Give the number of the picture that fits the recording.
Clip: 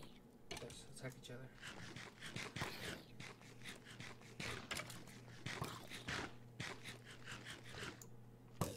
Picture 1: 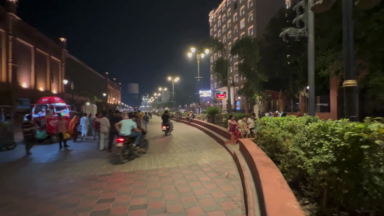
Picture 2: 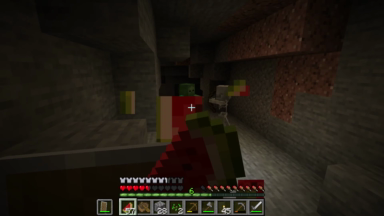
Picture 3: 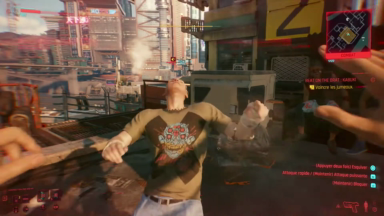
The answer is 2